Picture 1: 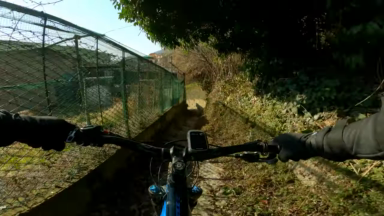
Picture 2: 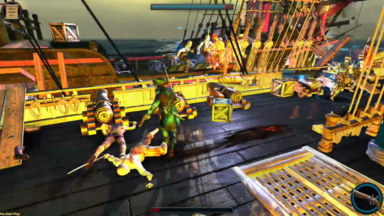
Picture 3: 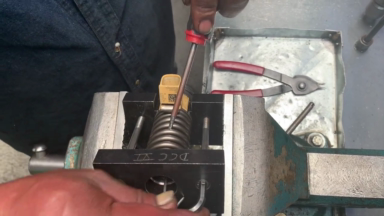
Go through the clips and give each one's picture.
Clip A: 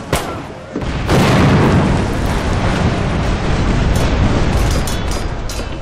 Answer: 2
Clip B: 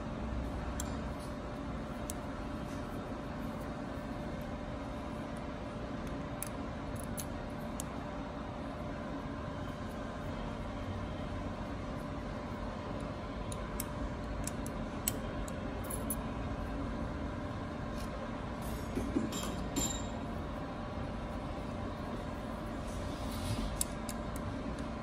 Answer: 3